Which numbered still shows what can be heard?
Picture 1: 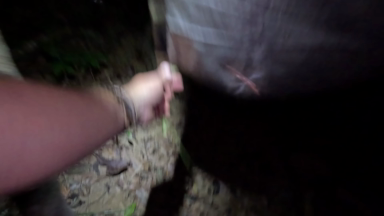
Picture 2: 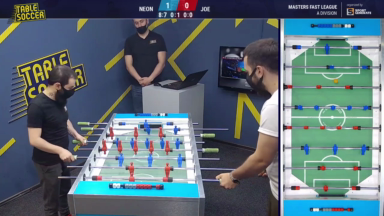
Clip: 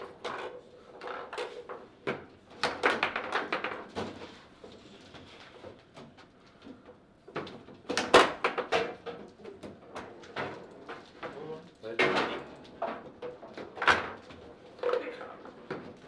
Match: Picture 2